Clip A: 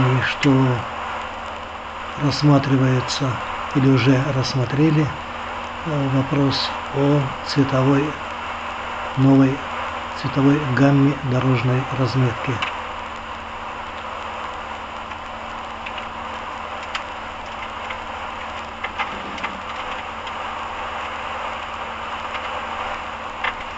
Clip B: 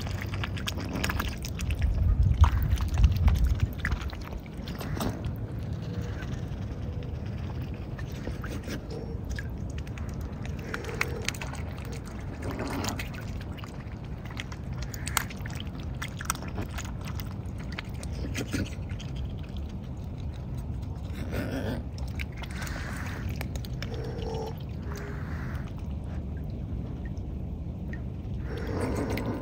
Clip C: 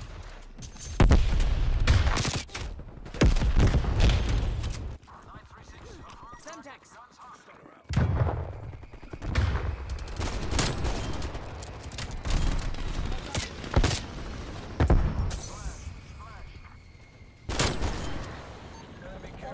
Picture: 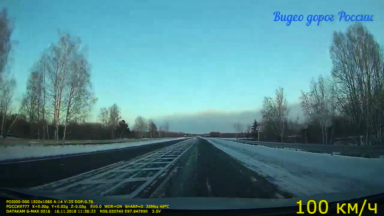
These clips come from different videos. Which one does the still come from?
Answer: A